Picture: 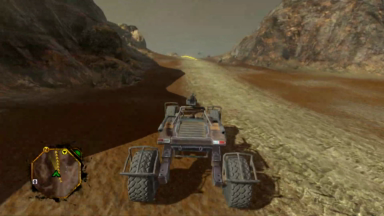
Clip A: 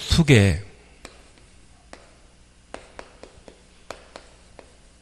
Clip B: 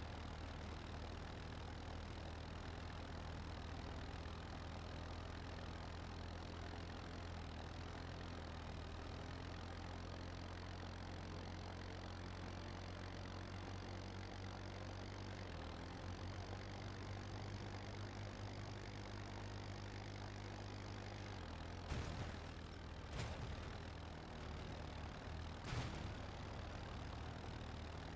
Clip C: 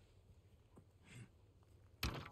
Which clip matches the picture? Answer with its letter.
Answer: B